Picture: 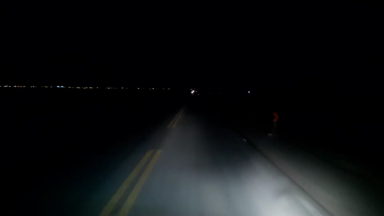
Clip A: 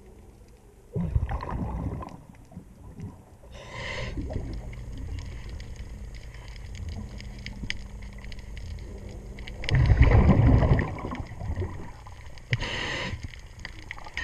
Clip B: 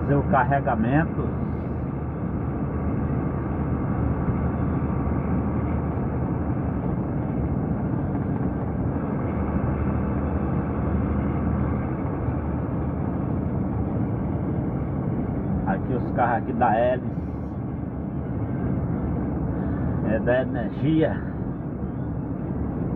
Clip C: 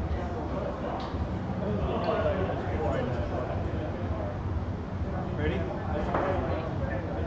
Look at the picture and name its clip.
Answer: B